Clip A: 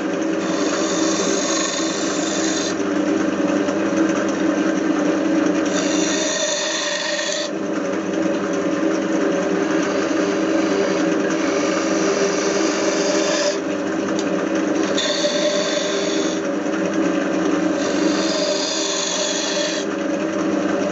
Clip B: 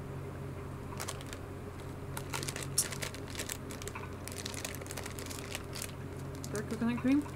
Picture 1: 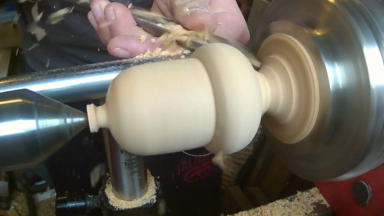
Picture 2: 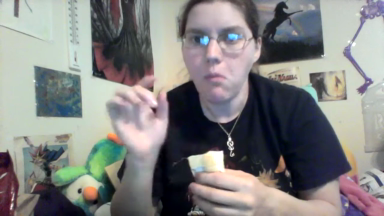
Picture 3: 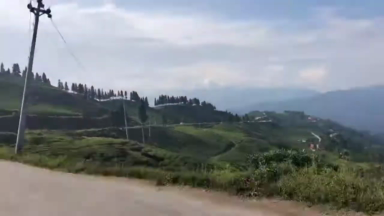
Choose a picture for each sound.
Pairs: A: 1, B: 2